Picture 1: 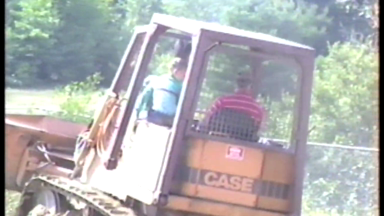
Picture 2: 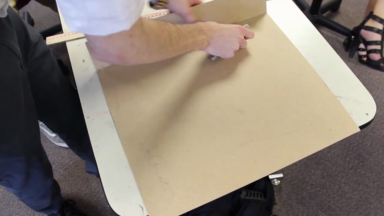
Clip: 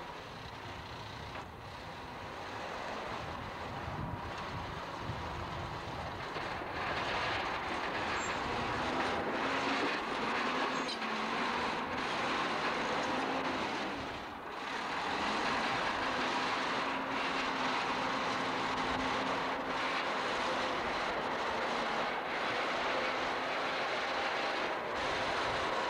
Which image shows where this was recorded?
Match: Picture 1